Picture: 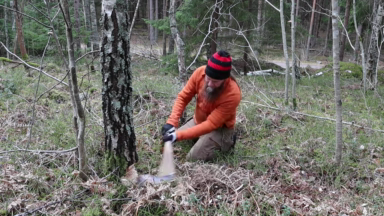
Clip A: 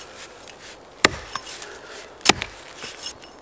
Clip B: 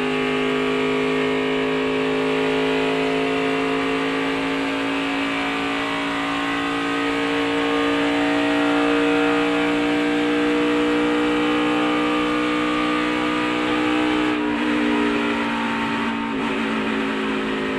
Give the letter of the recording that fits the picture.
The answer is A